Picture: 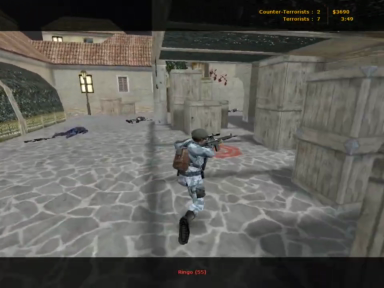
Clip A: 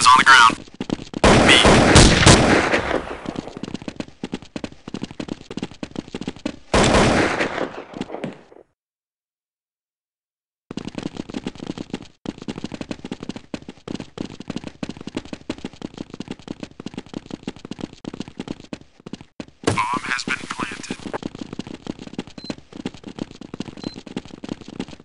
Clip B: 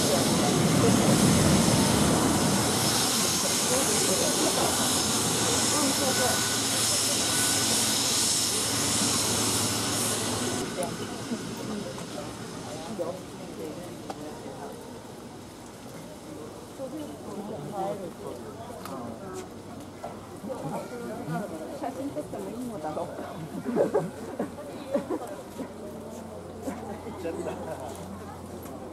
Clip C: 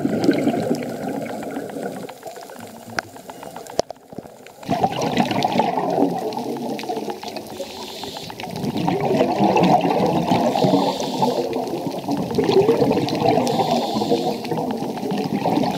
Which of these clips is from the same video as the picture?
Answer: A